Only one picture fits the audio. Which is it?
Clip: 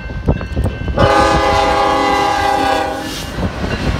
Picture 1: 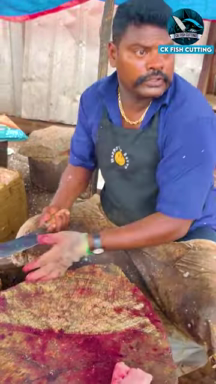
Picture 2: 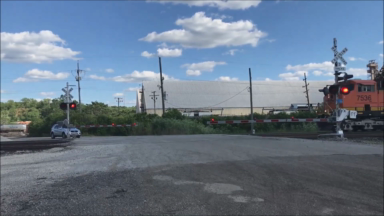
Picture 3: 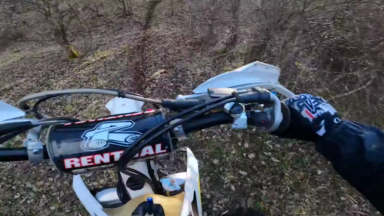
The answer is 2